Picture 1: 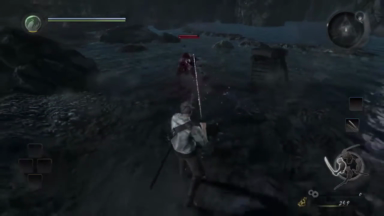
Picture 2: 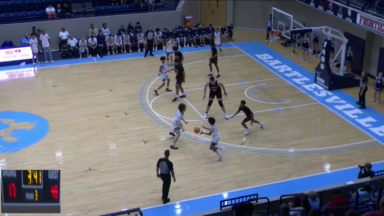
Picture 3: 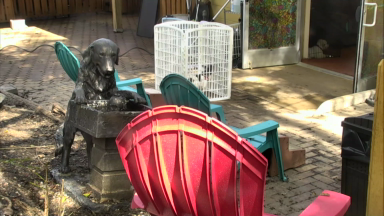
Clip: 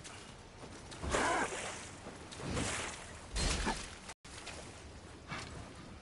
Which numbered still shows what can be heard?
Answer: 1